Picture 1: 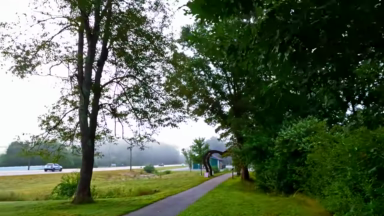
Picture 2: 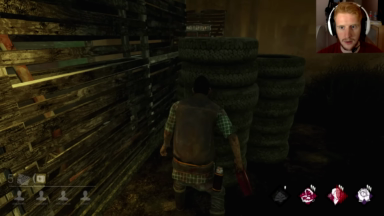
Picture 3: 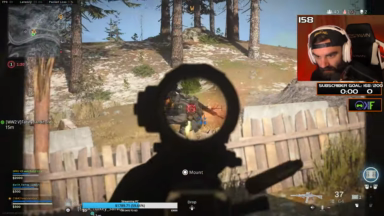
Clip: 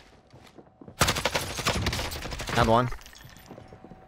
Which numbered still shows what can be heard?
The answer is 3